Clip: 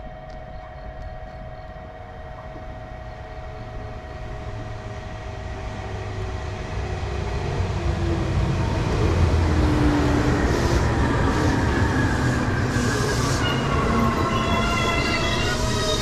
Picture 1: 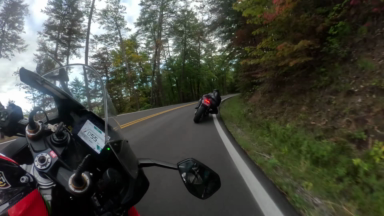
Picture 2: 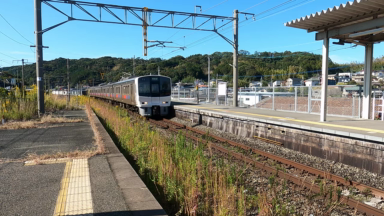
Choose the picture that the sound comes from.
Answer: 2